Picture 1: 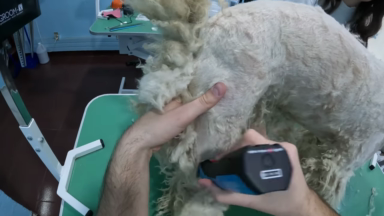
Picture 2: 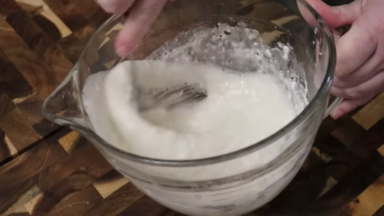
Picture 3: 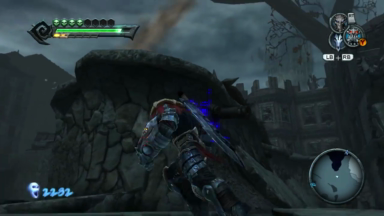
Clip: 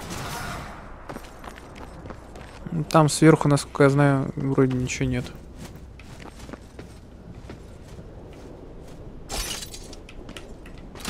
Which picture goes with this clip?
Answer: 3